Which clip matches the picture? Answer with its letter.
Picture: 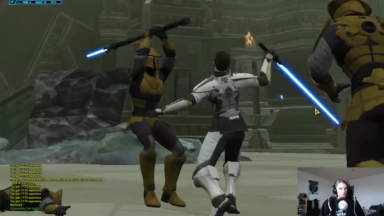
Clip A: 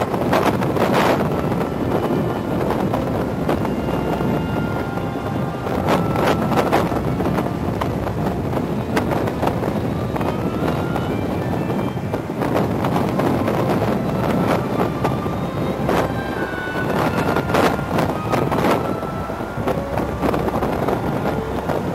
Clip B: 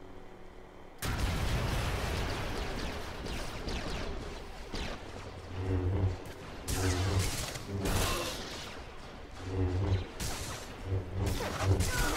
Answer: B